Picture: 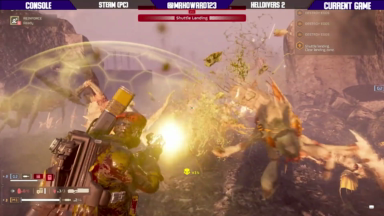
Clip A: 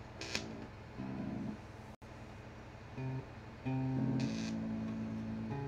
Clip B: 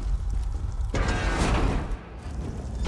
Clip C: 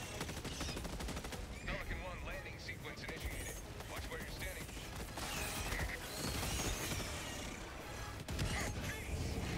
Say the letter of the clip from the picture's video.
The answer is C